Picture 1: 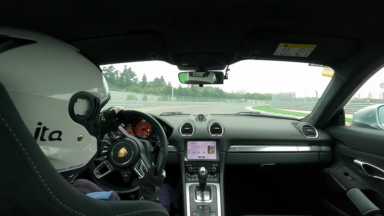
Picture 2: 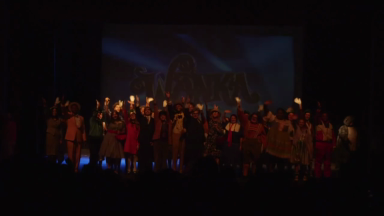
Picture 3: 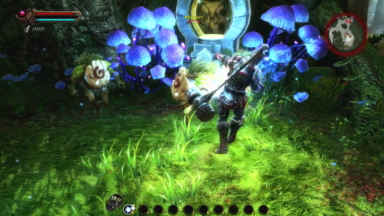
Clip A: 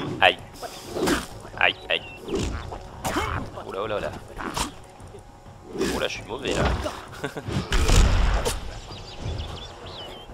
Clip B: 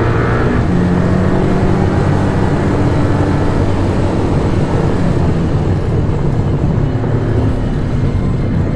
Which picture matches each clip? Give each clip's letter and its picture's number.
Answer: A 3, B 1